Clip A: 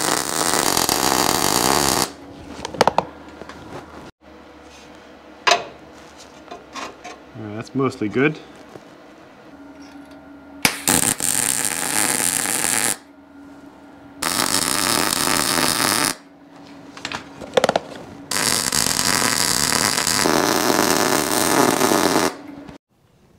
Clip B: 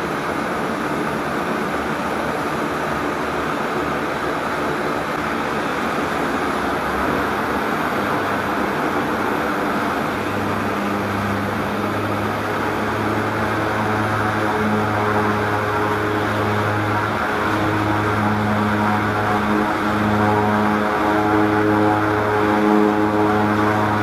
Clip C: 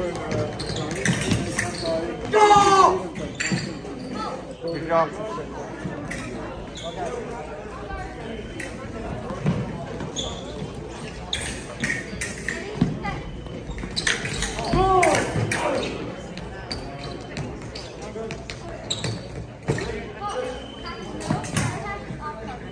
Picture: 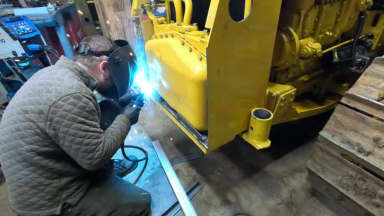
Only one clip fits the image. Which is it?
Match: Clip A